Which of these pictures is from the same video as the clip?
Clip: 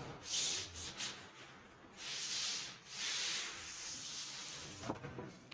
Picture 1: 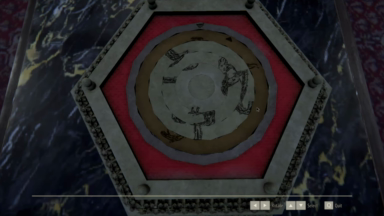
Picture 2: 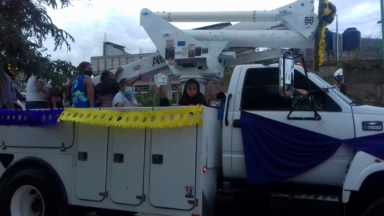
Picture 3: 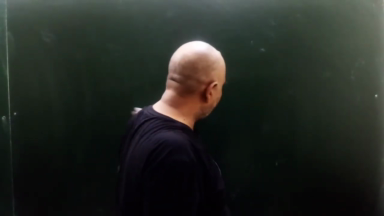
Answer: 3